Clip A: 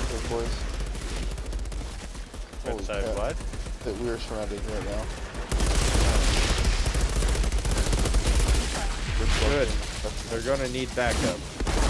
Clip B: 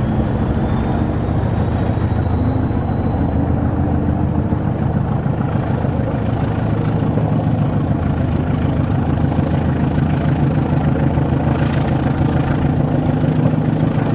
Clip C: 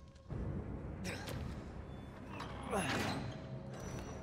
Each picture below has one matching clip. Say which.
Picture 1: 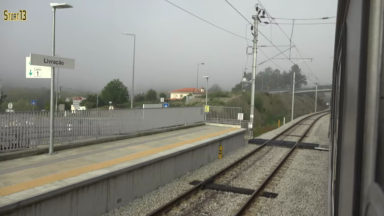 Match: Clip B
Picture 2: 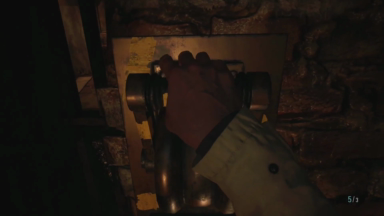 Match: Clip C